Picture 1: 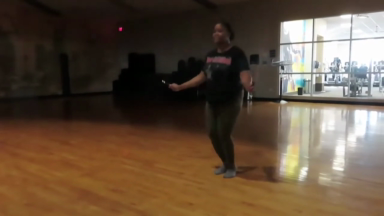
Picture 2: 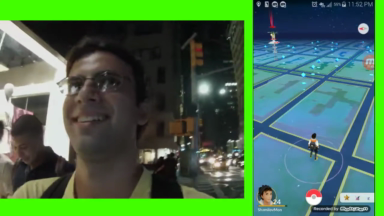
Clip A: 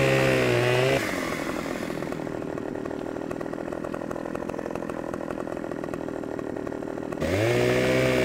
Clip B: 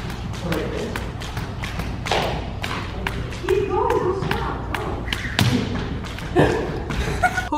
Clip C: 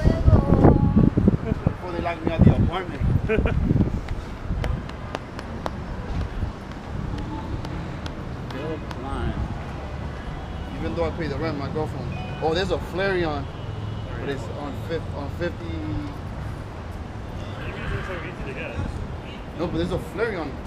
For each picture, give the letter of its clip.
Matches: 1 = B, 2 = C